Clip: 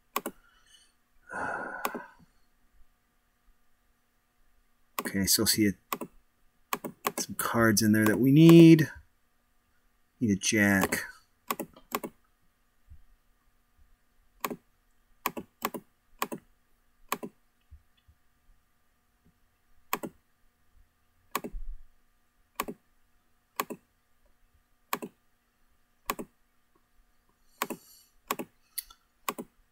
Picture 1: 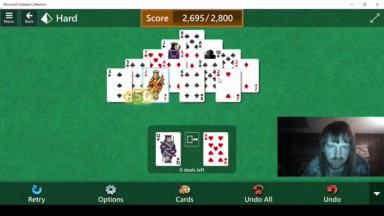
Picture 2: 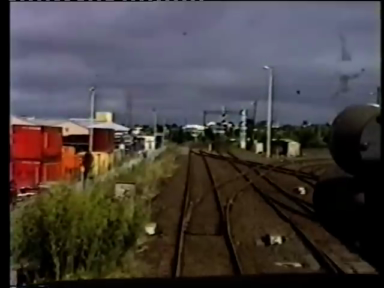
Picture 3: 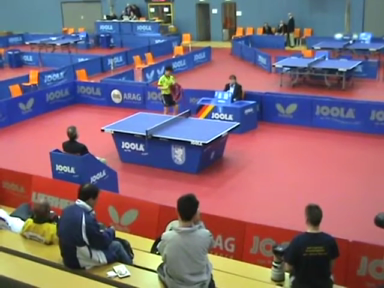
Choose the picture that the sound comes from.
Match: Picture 1